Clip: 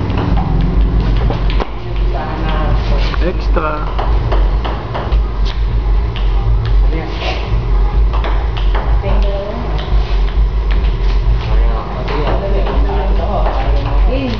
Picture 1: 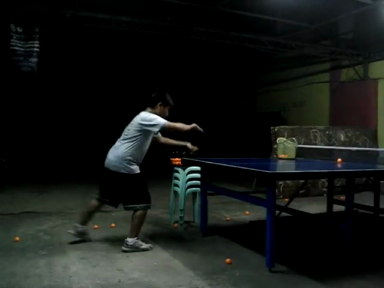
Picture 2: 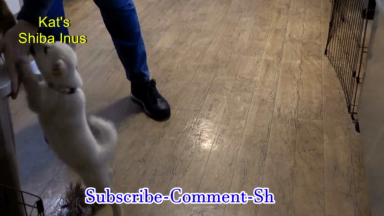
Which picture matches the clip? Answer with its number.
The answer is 1